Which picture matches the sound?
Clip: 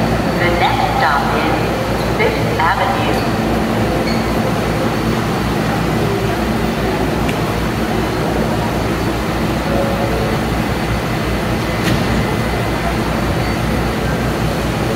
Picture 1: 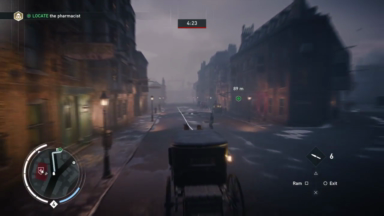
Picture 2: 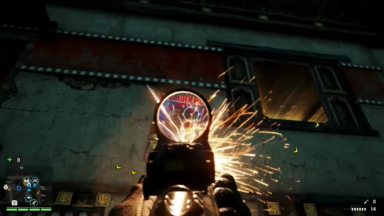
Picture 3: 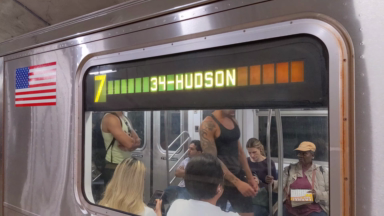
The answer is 3